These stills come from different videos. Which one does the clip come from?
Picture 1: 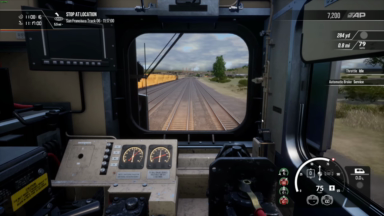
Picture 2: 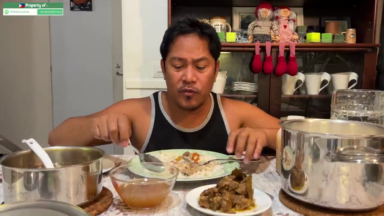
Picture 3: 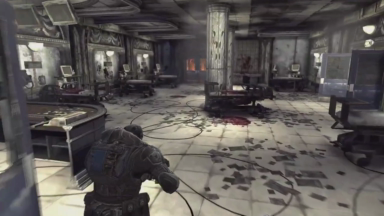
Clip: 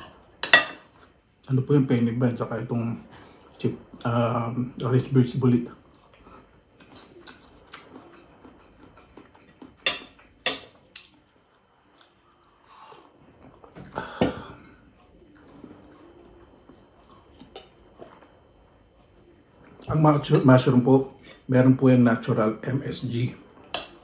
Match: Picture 2